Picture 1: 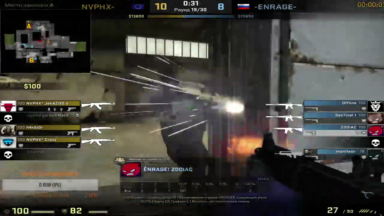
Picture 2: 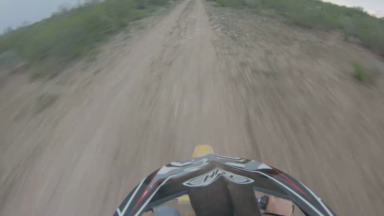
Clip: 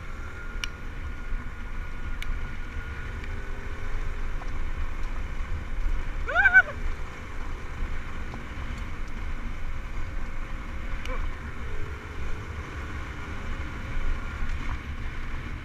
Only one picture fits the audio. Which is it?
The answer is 2